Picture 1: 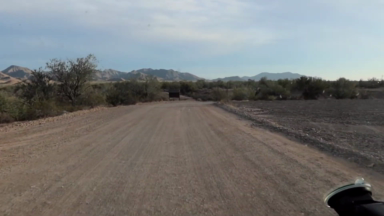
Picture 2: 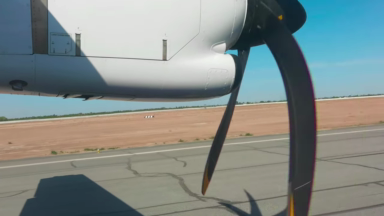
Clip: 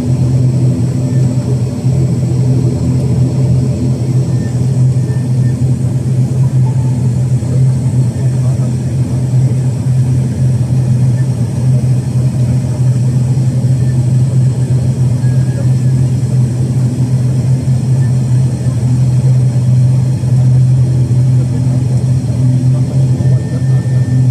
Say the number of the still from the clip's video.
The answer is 2